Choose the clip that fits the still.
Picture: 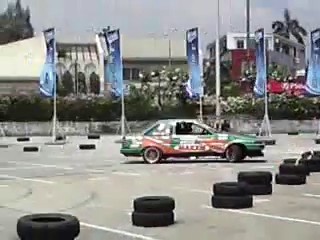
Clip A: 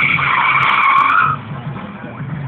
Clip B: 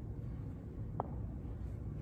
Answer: A